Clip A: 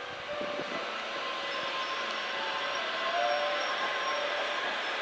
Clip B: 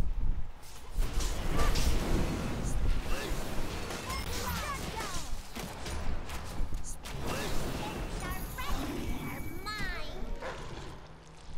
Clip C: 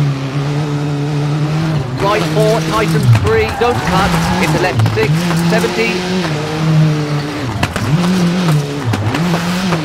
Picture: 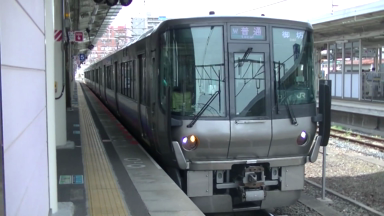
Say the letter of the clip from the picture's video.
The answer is A